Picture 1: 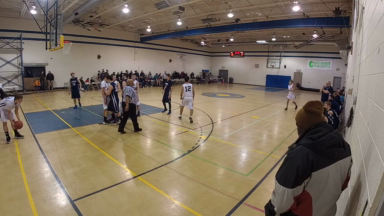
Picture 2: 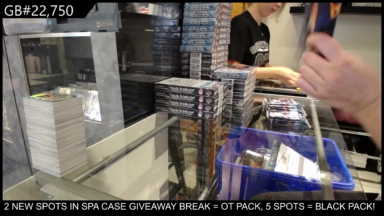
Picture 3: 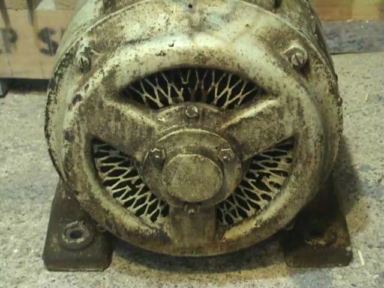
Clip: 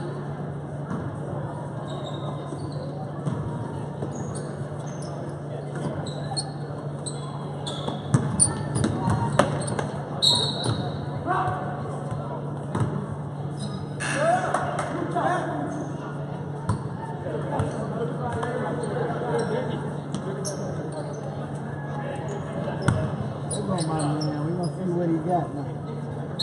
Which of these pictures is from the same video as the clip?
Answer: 1